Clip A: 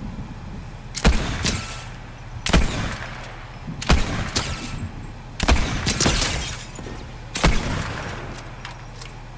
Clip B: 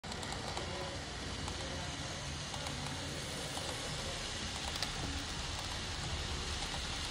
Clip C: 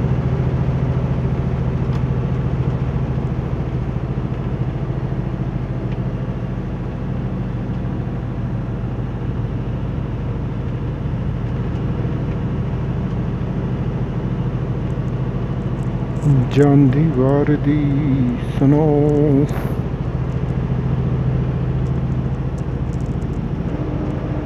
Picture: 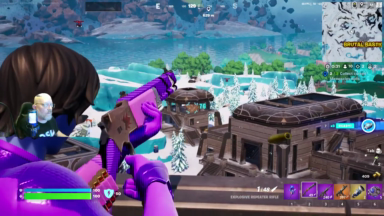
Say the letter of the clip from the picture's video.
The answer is A